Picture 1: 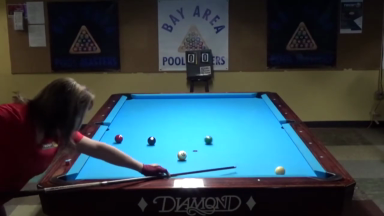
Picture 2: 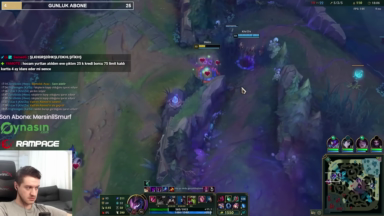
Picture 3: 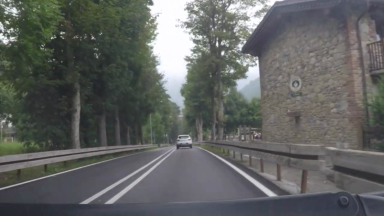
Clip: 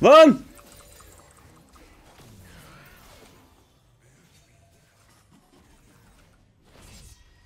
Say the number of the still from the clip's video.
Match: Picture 2